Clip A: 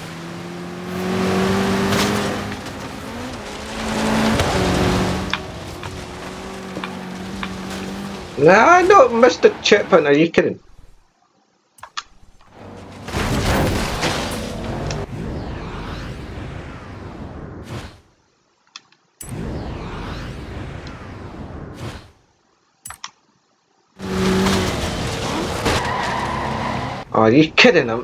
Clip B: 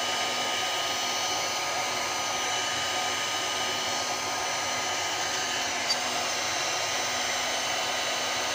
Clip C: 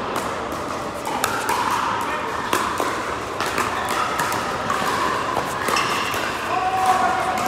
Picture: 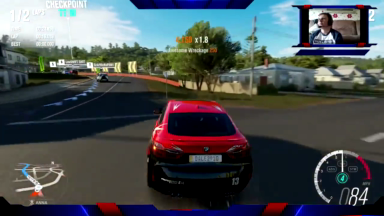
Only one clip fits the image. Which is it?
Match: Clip A